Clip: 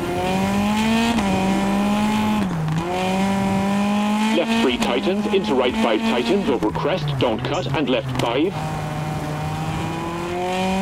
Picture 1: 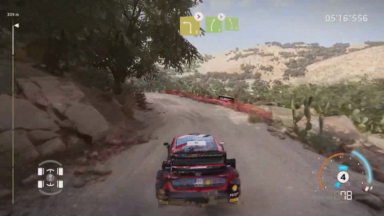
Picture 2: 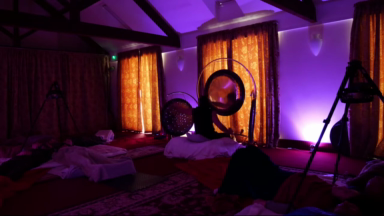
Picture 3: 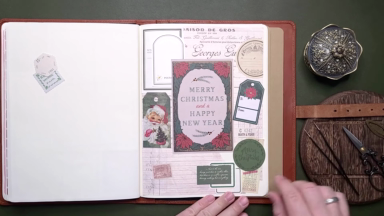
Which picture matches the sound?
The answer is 1